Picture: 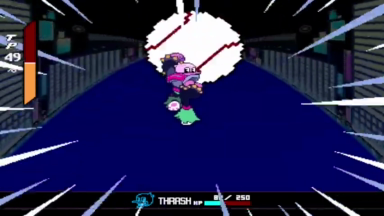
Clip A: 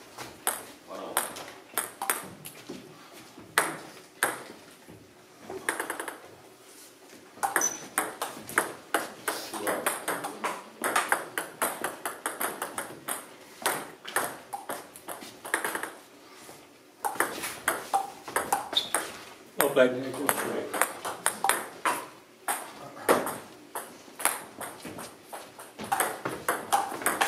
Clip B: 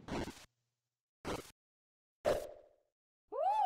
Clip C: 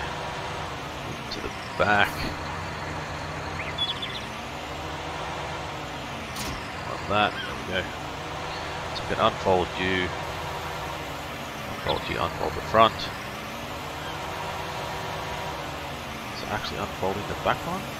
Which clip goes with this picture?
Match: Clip B